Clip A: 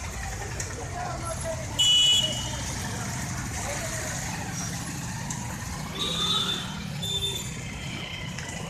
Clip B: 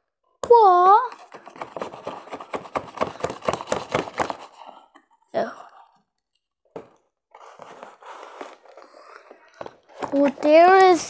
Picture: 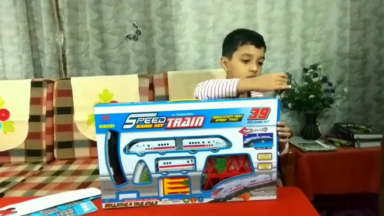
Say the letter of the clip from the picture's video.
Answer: B